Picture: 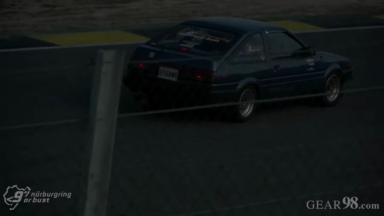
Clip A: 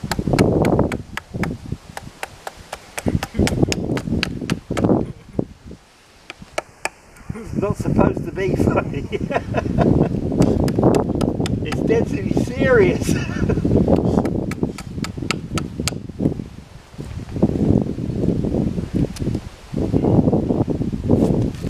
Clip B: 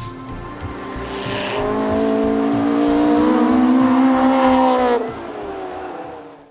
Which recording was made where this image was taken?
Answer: B